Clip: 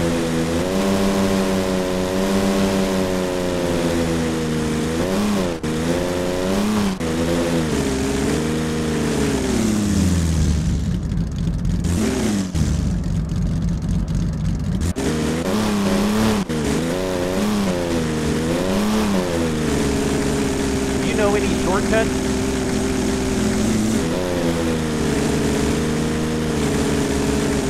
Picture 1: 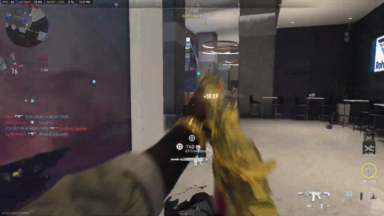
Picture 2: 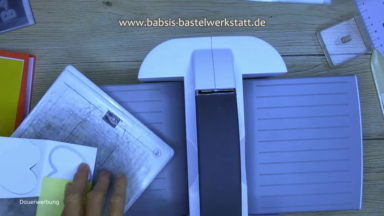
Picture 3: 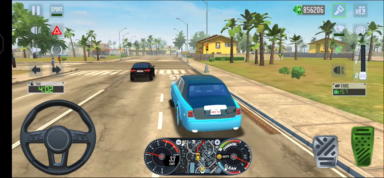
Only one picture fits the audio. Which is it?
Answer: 3